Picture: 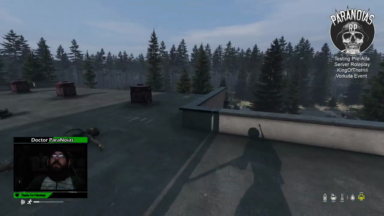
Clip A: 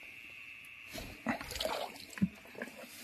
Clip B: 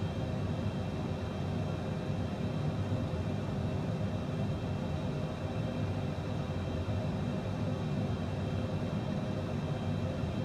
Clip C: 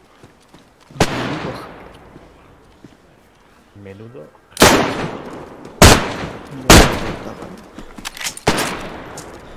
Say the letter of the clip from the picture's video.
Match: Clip C